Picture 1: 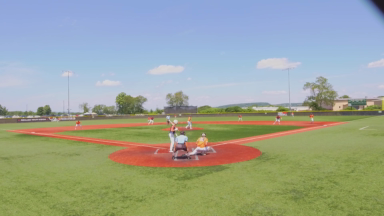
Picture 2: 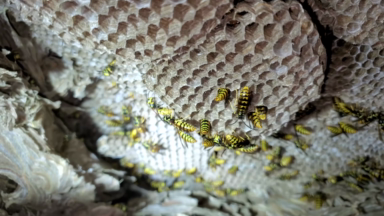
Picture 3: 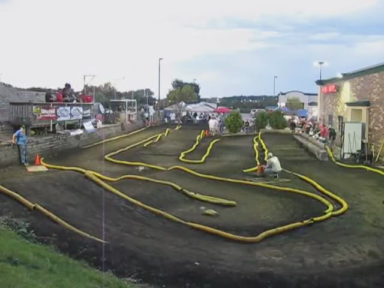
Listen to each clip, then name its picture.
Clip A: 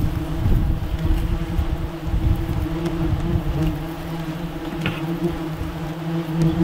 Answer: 2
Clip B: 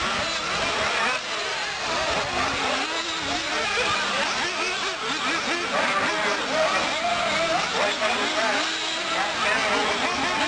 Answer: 3